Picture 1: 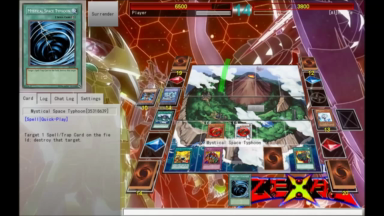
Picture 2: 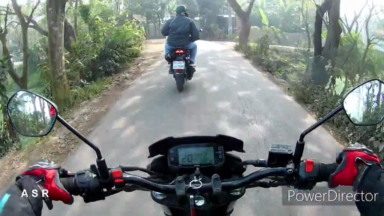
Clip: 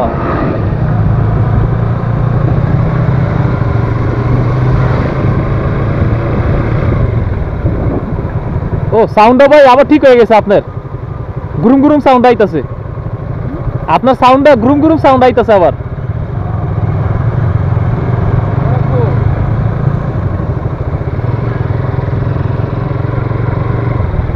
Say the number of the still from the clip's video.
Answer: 2